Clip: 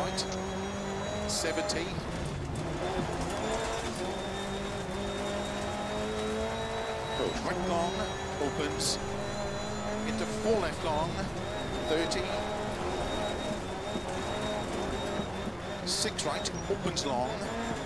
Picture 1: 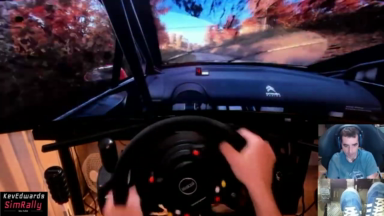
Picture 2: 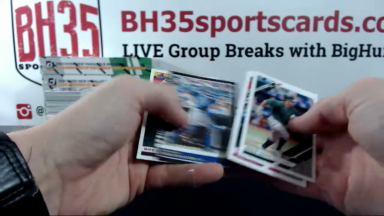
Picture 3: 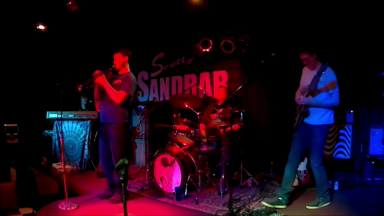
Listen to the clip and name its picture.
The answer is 1